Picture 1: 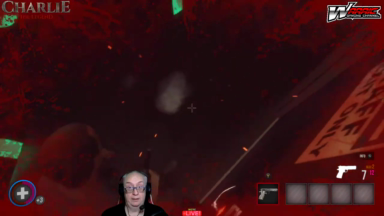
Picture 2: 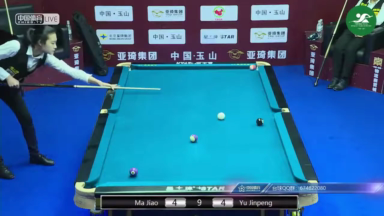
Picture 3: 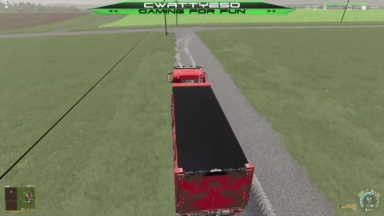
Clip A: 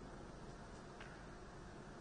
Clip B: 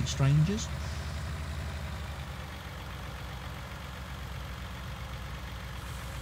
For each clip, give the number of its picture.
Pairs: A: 2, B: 3